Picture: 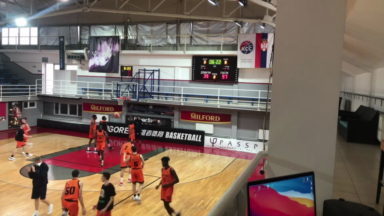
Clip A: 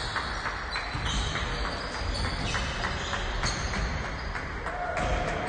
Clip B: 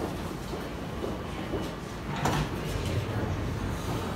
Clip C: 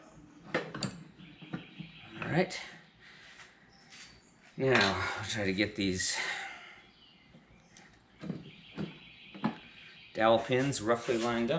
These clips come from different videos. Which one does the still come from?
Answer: A